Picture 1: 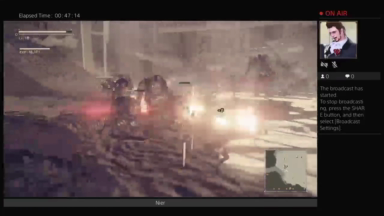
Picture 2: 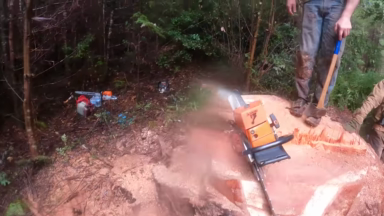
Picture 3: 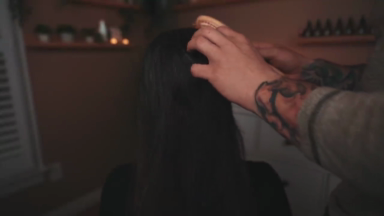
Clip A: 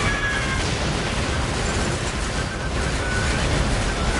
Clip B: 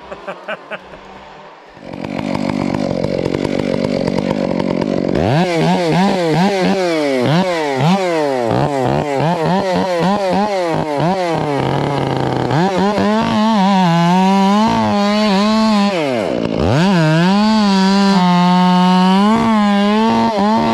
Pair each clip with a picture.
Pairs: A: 1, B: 2